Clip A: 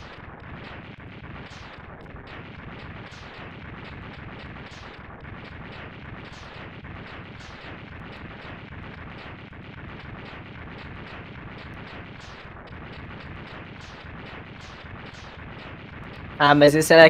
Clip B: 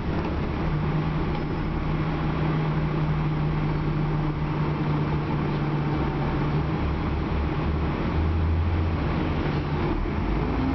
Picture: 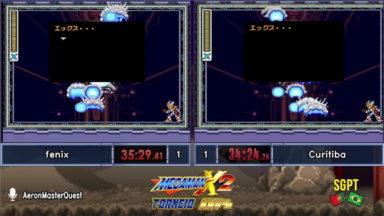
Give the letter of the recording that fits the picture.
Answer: A